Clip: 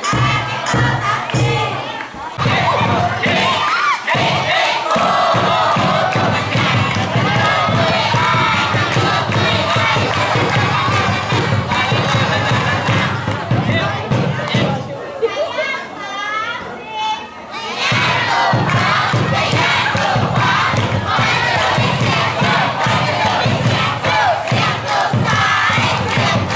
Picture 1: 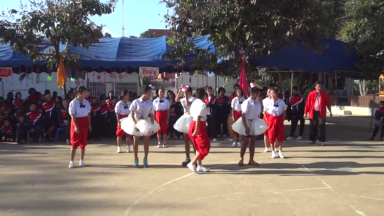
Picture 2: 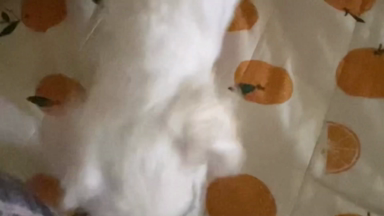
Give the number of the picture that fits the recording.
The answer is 1